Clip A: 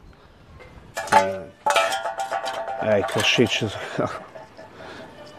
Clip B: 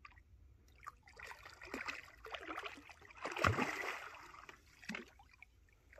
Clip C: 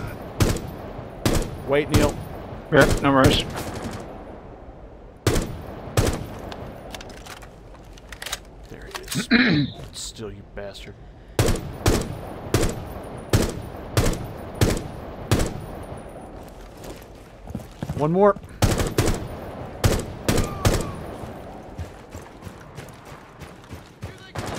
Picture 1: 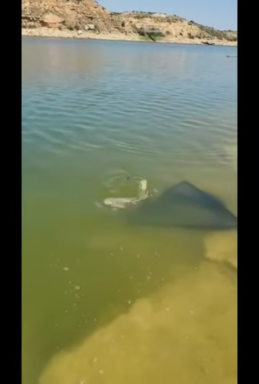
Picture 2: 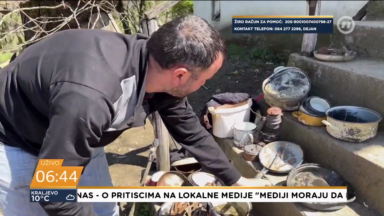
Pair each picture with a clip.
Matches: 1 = B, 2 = A